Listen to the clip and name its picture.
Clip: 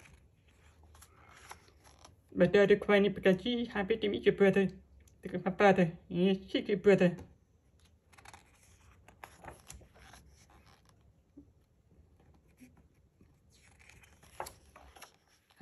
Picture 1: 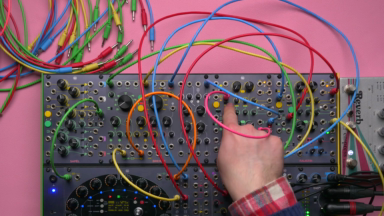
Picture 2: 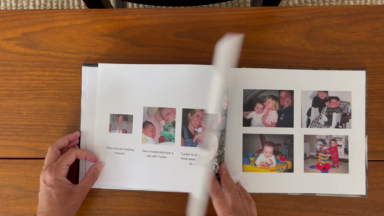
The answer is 2